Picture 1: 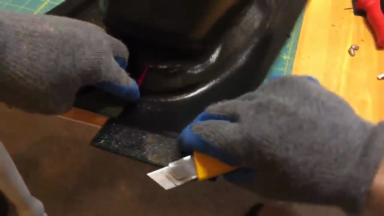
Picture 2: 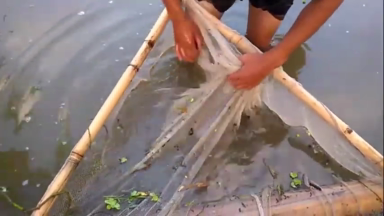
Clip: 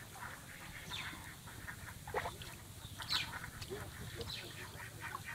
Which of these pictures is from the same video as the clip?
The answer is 2